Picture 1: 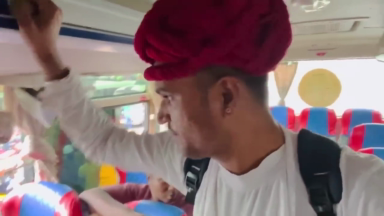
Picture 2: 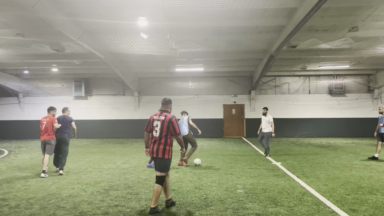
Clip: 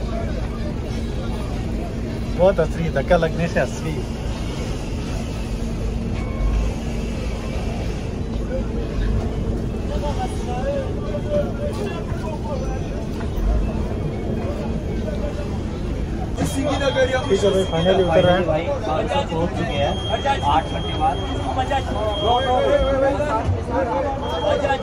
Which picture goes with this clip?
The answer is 1